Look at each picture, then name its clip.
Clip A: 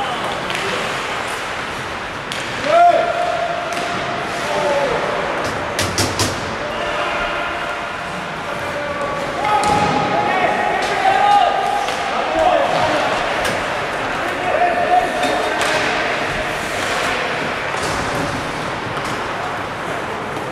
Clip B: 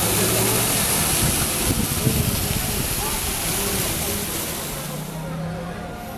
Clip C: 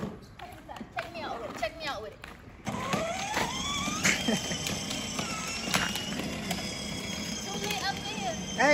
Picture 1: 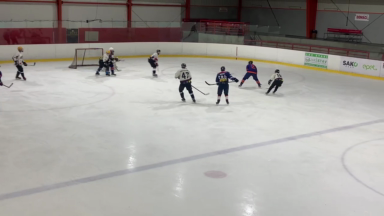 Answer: A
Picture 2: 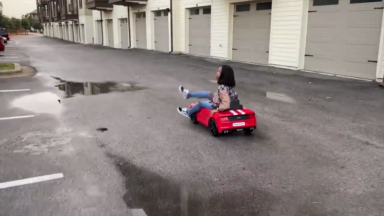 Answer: C